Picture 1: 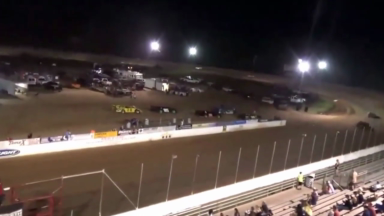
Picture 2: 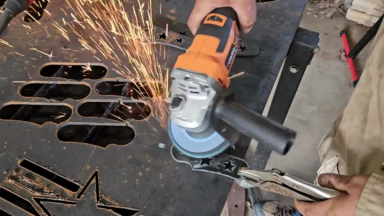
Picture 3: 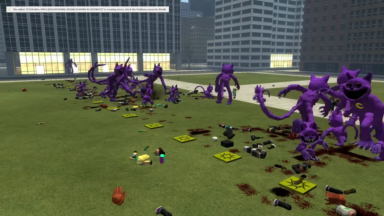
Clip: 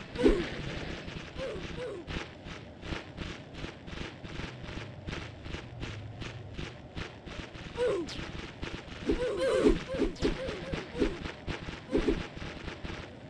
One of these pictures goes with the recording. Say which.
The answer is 3